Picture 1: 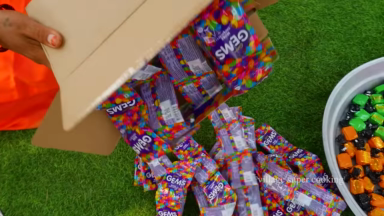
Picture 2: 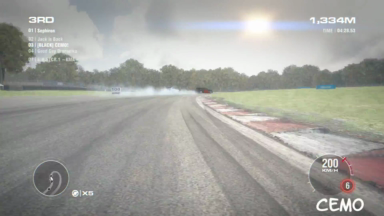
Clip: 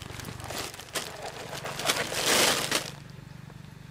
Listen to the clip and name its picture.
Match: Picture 1